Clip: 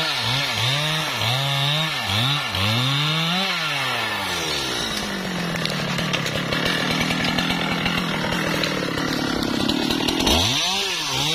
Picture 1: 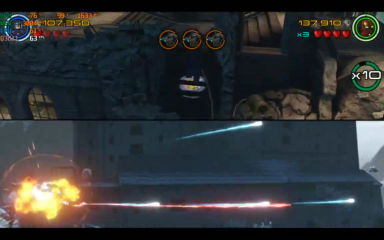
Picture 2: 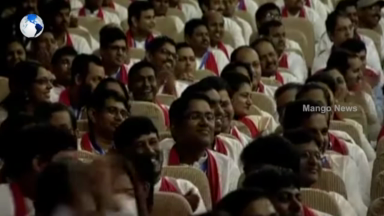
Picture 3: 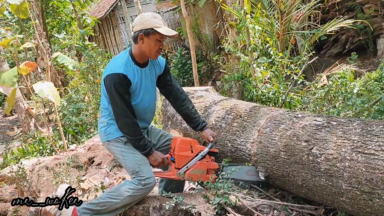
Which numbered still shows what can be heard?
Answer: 3